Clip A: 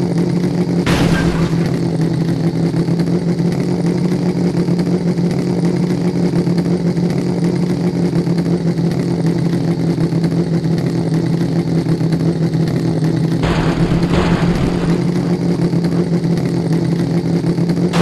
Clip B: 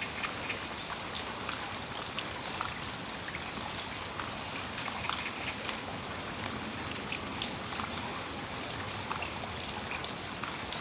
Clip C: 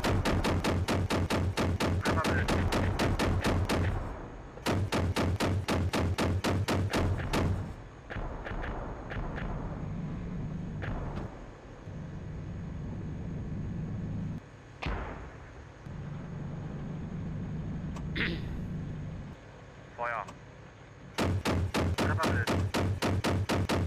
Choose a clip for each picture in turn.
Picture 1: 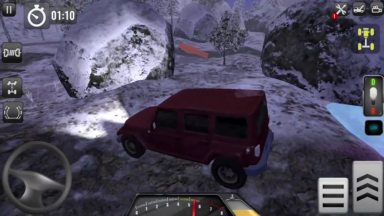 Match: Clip A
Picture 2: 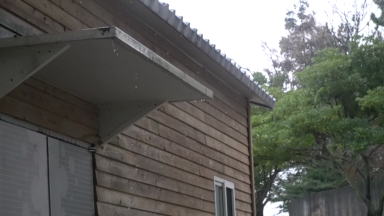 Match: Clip B